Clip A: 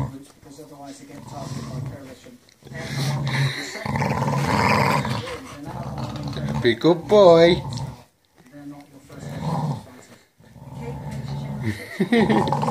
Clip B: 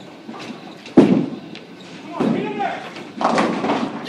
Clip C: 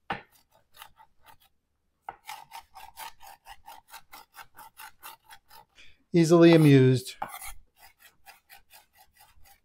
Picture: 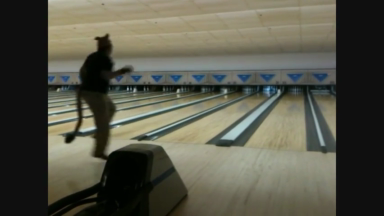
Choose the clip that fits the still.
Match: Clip B